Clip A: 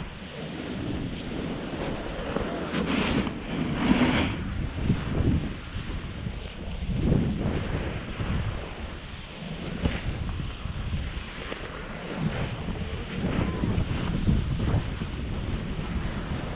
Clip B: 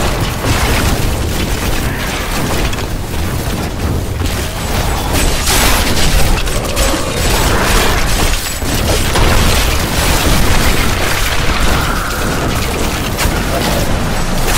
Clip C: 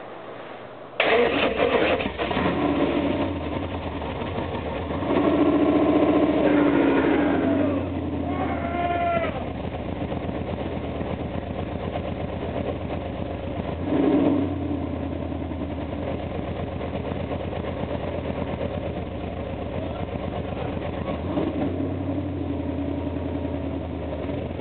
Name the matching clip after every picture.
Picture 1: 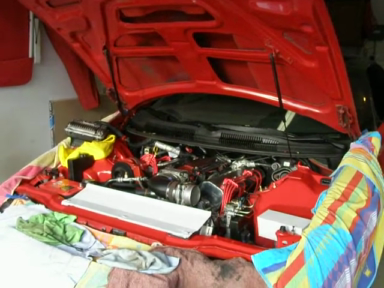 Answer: C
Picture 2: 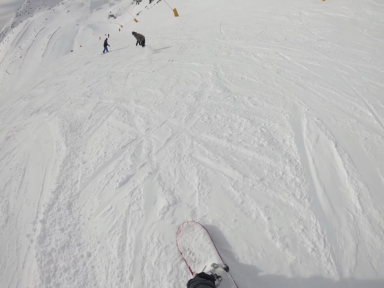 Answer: A